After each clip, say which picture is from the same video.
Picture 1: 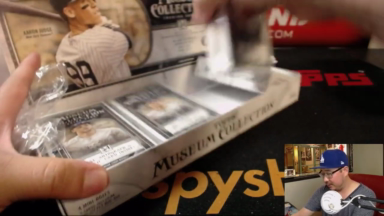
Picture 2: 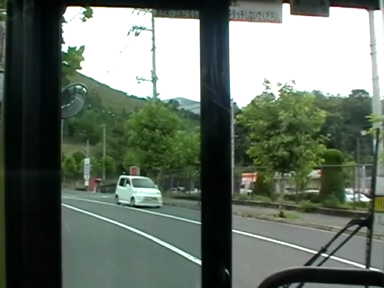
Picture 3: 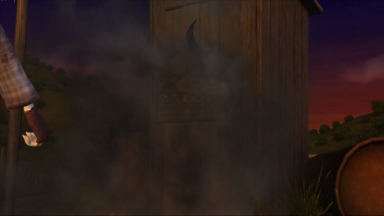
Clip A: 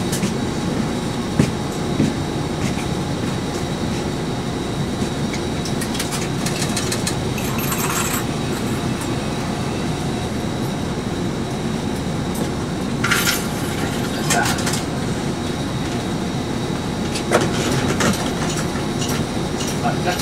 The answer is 2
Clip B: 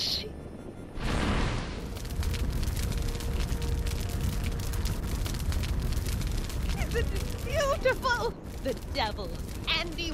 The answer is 3